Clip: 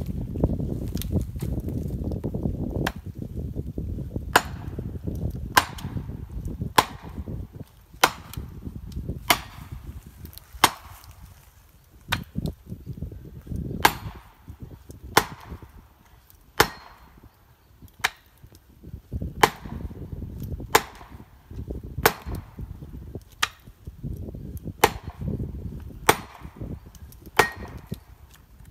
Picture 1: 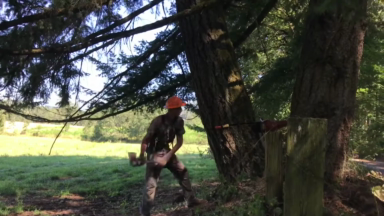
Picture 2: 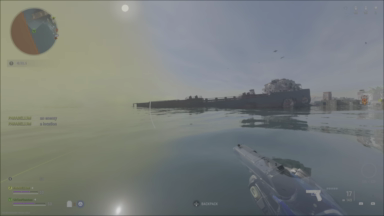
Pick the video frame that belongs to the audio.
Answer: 1